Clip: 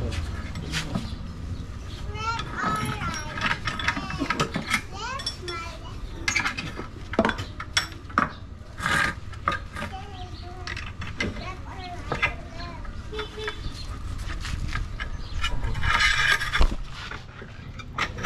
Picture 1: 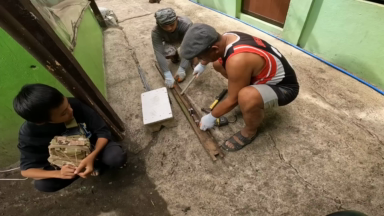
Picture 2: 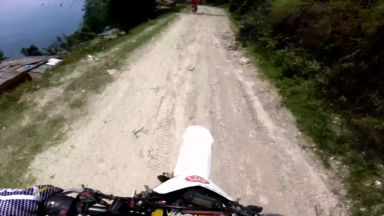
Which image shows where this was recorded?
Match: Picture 1